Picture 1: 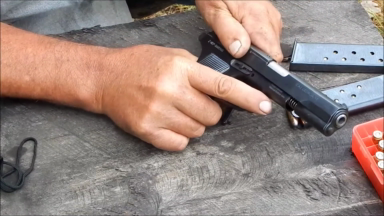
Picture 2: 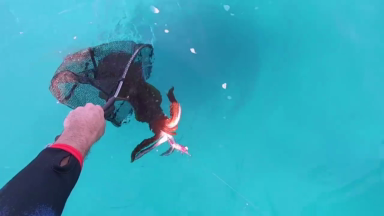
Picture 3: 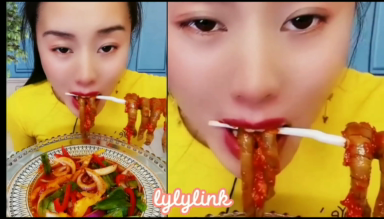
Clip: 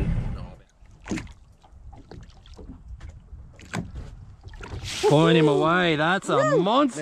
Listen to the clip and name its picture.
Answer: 2